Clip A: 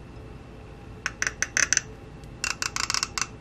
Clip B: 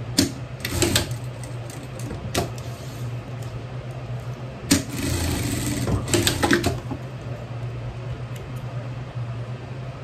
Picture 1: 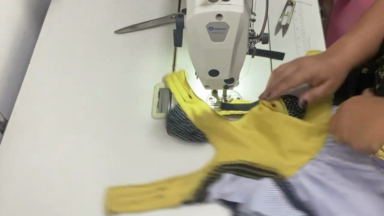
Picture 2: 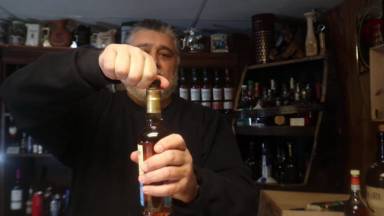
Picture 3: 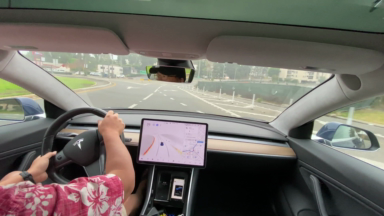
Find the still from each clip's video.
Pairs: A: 2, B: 1